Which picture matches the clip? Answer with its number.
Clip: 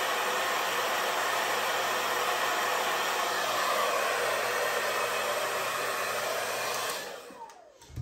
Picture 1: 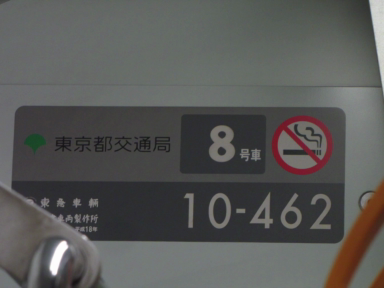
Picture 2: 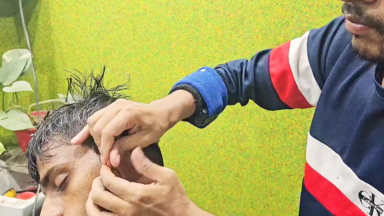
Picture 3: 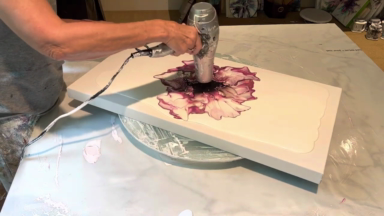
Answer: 3